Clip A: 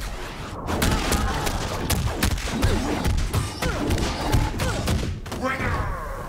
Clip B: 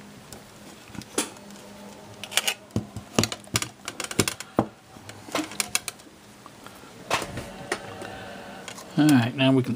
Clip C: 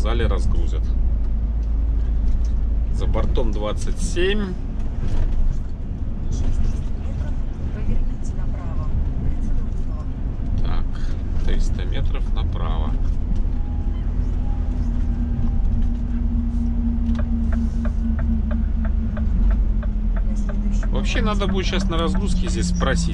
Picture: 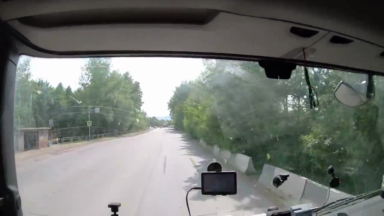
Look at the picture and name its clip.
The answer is C